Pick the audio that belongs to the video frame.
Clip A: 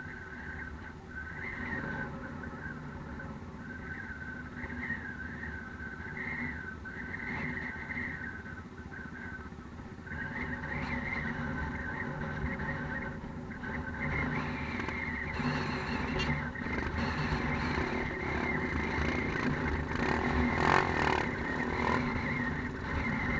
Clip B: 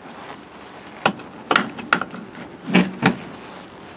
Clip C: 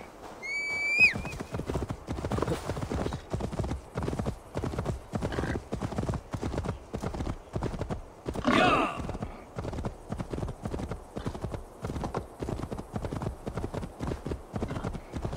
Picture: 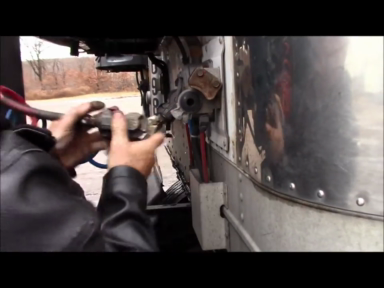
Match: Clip B